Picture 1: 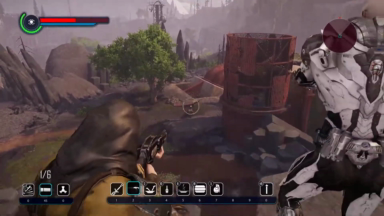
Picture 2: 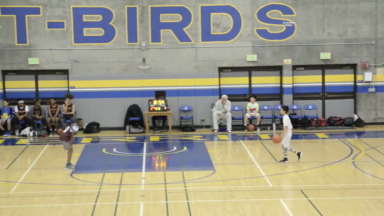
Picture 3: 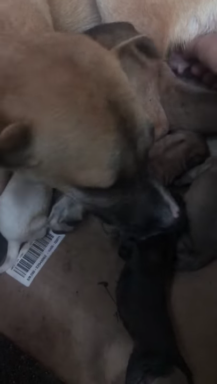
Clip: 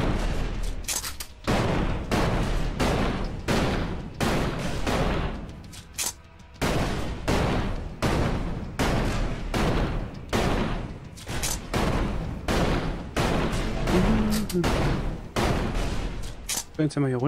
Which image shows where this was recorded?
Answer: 1